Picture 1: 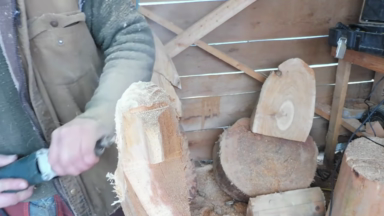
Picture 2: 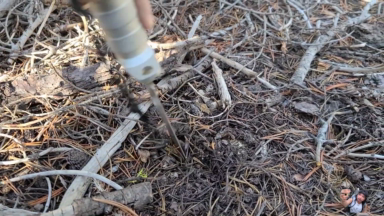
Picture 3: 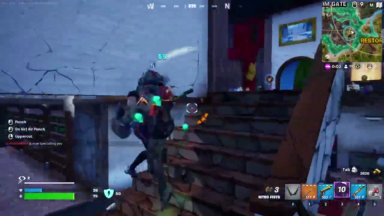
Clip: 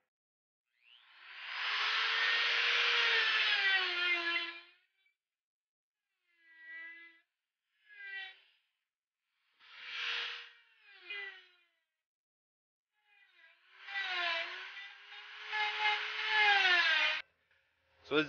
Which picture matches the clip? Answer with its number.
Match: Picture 1